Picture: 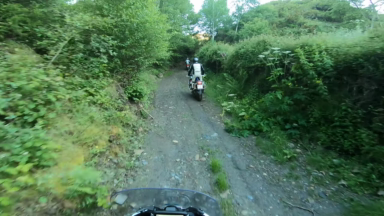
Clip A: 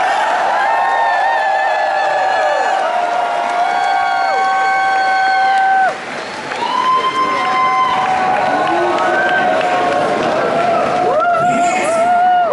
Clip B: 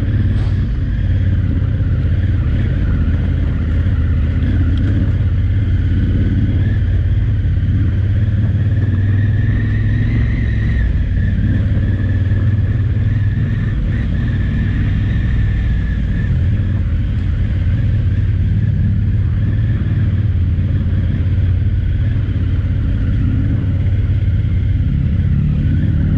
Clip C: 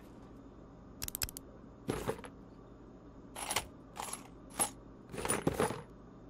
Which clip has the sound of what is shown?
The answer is B